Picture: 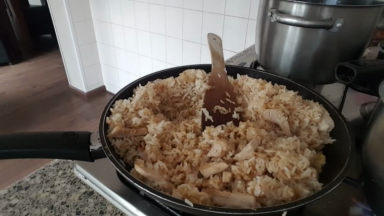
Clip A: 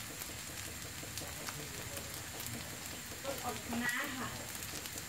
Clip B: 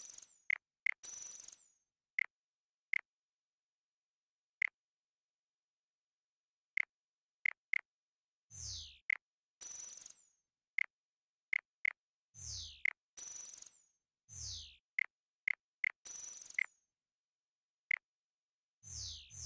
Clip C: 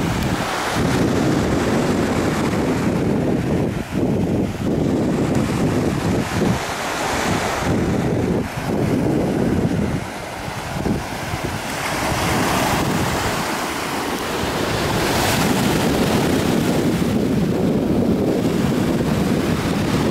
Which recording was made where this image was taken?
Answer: A